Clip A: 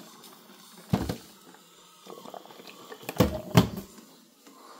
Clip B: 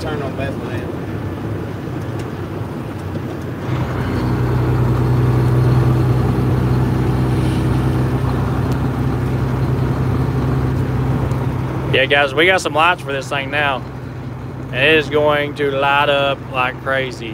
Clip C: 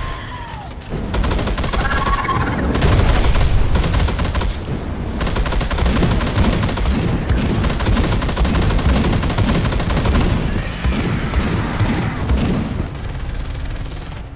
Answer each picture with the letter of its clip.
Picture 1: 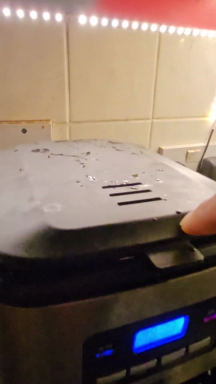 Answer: A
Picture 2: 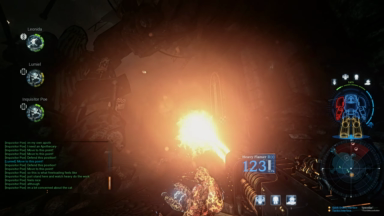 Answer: C